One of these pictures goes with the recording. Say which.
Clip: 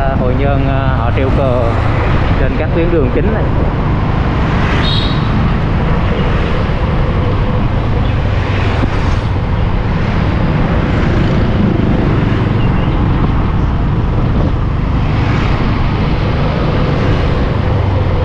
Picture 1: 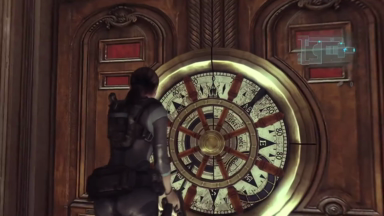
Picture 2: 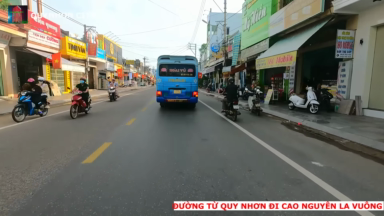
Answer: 2